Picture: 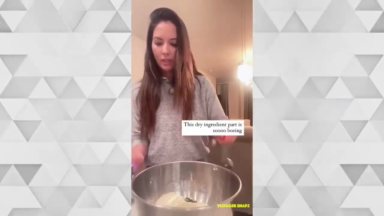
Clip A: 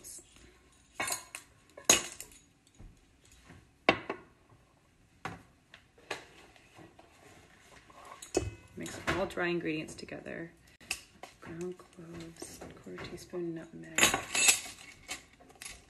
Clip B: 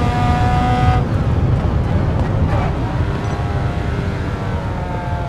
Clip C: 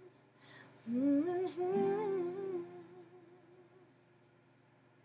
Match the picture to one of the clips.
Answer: A